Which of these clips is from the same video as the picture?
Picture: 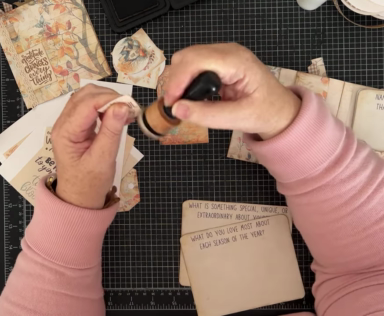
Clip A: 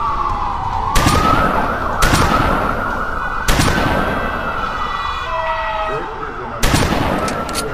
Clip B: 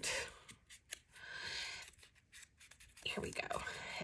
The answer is B